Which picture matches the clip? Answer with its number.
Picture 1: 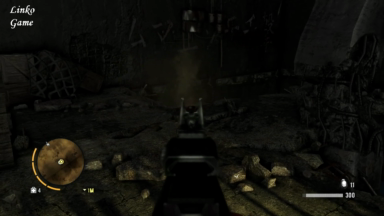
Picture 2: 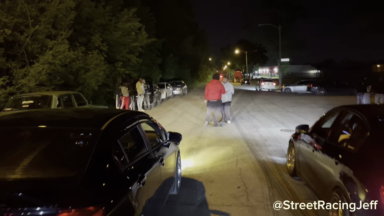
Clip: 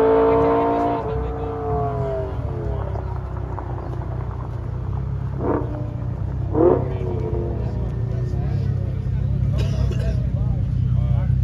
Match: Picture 2